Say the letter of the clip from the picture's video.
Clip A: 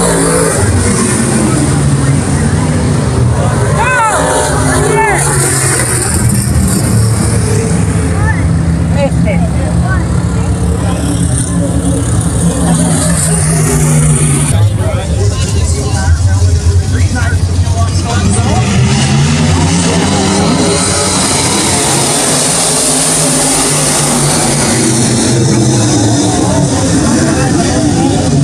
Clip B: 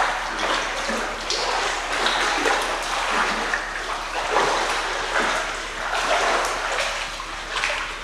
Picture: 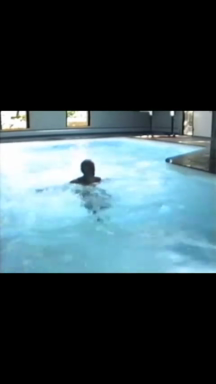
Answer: B